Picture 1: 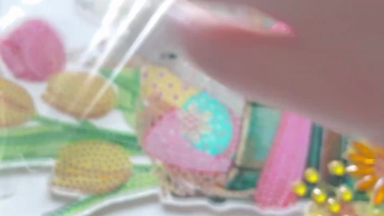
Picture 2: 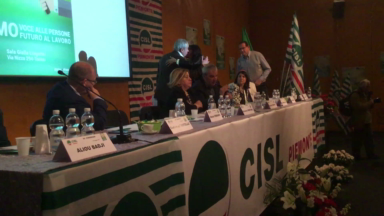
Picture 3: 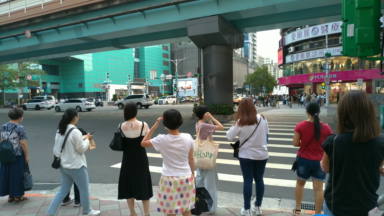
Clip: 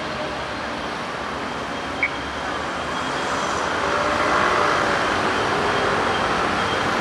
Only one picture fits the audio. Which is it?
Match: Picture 3